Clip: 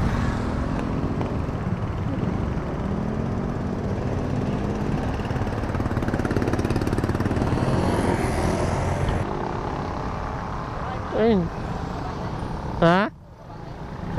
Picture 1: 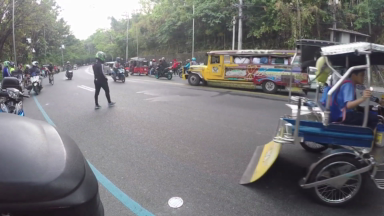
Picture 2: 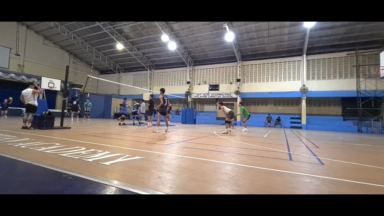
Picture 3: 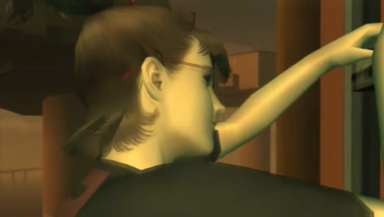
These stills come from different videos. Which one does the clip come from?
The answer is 1